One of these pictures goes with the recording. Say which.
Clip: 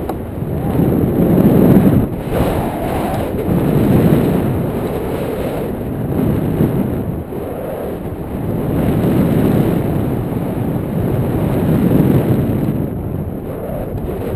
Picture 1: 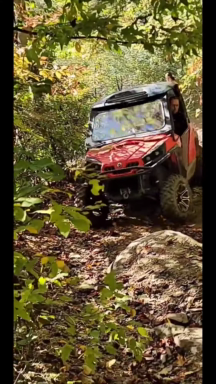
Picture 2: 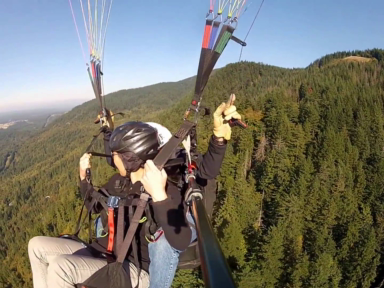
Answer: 2